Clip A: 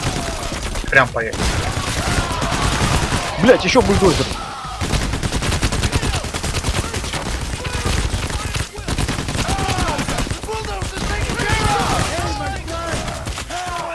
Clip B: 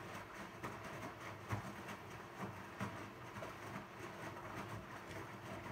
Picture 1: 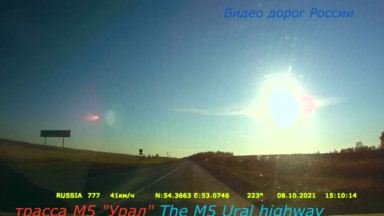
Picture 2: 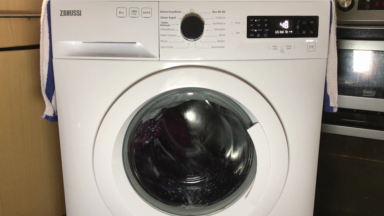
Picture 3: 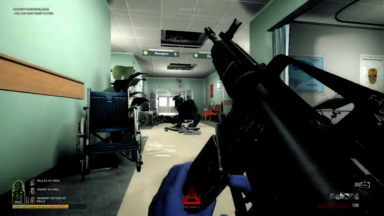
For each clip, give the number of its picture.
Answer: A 3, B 2